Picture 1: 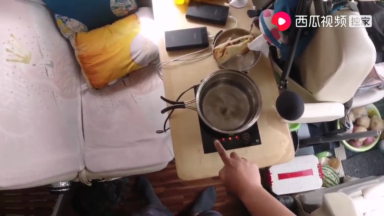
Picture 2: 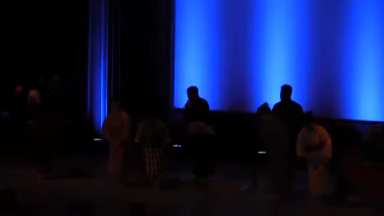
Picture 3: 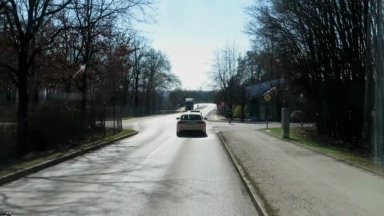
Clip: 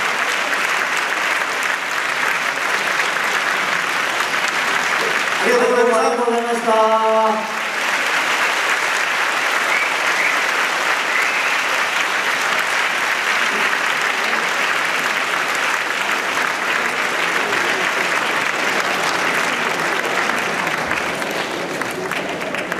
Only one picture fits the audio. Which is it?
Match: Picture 2